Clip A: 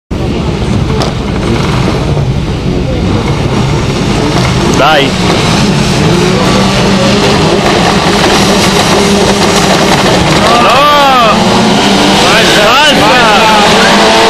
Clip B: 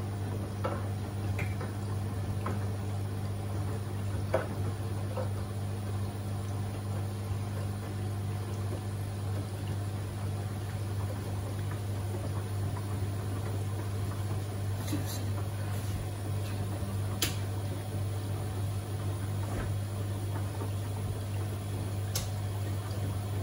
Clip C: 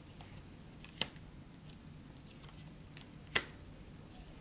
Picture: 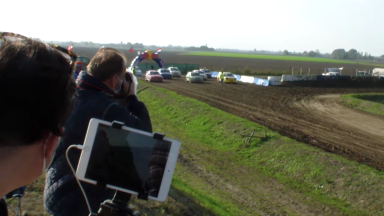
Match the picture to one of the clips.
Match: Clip A